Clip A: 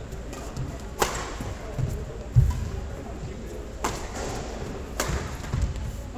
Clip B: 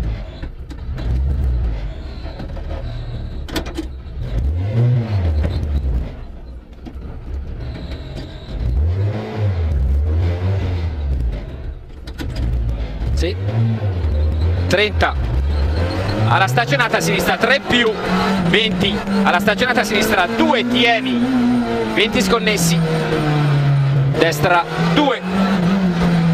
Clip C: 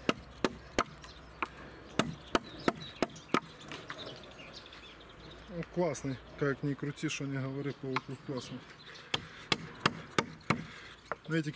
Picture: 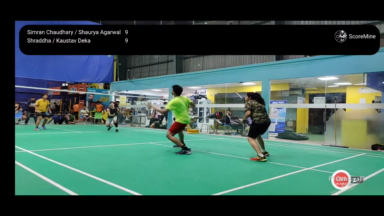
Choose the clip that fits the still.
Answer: A